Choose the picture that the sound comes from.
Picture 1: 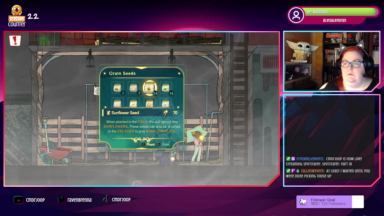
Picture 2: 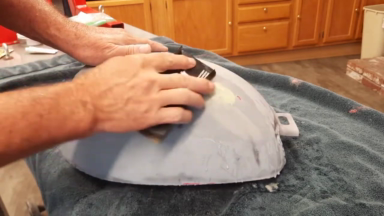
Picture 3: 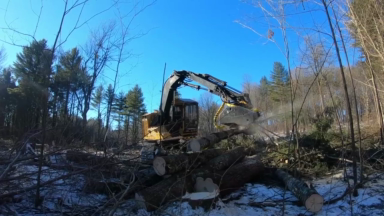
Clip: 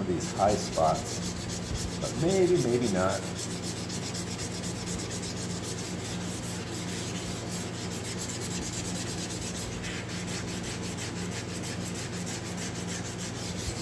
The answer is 2